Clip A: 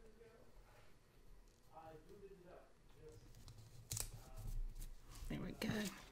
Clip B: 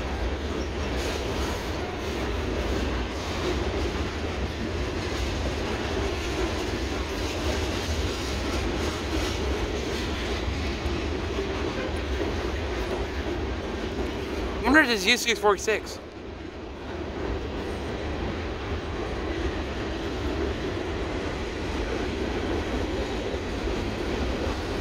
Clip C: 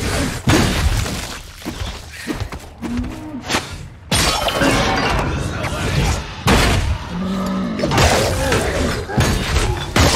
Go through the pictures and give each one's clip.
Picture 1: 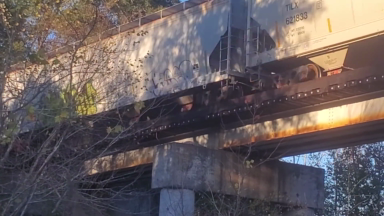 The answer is B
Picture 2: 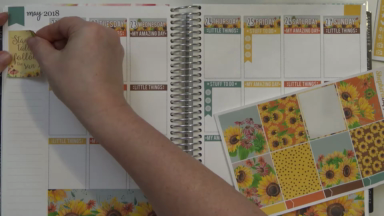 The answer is A